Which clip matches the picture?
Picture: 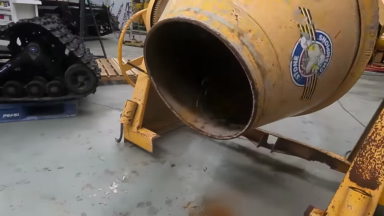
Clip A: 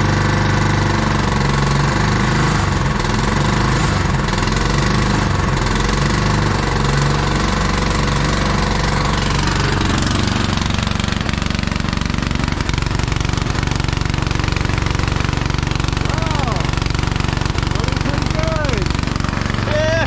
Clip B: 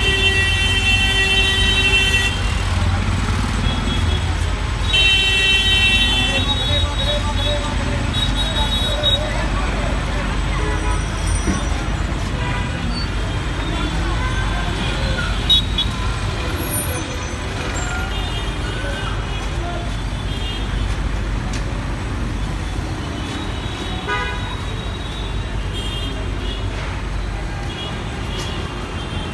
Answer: A